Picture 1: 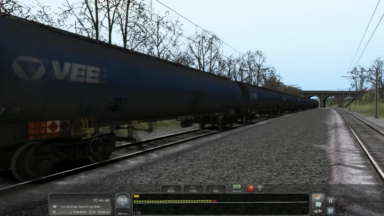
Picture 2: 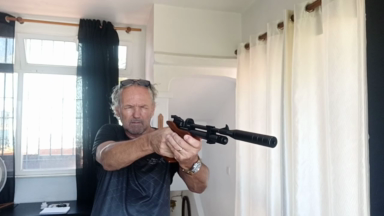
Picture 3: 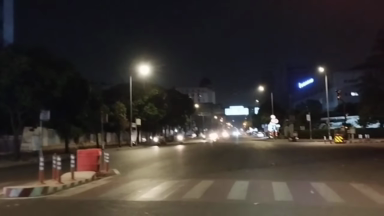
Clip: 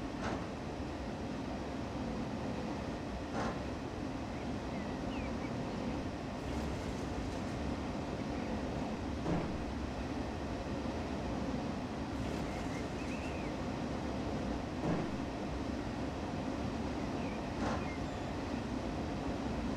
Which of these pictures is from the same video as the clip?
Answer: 1